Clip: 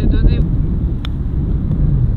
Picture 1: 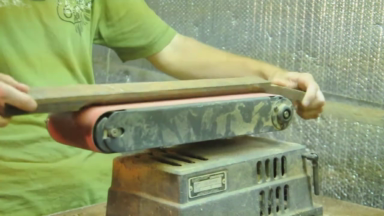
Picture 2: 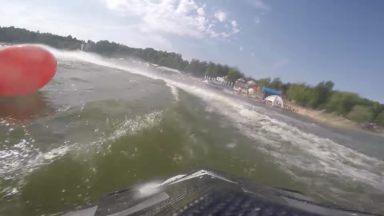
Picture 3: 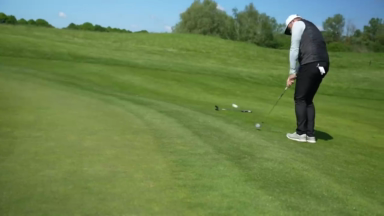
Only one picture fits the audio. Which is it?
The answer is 3